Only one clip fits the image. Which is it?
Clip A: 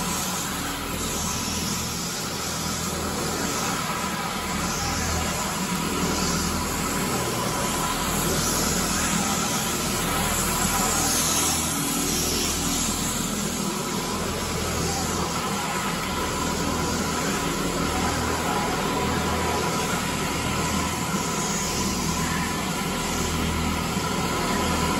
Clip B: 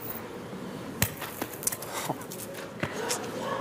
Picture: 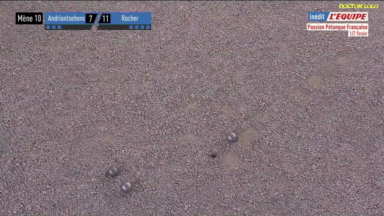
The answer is B